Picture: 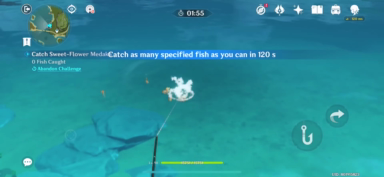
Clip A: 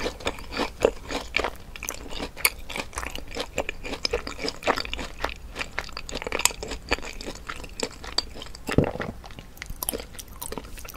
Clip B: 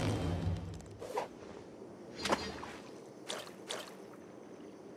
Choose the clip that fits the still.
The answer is B